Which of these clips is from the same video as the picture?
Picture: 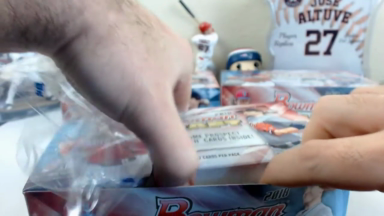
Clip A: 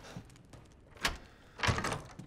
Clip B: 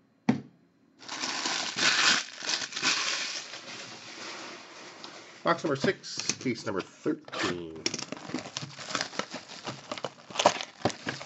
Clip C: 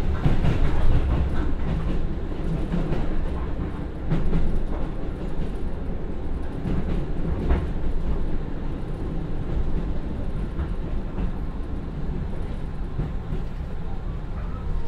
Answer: B